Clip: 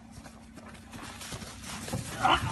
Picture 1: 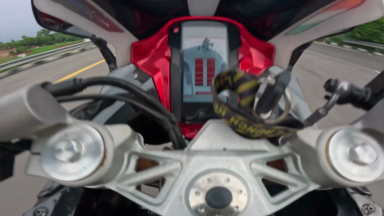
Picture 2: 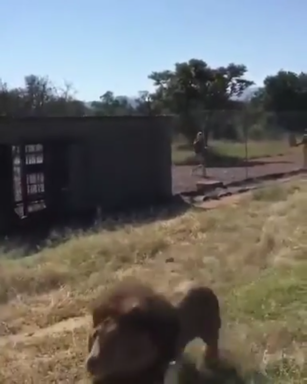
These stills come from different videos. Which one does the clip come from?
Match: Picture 2